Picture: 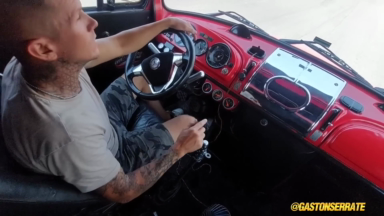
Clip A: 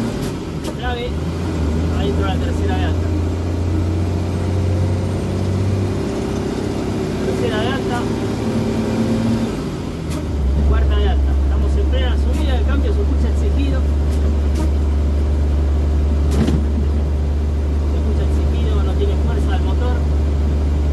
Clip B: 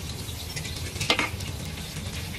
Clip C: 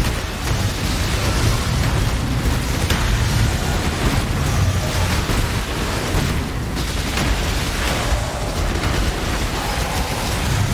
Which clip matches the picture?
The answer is A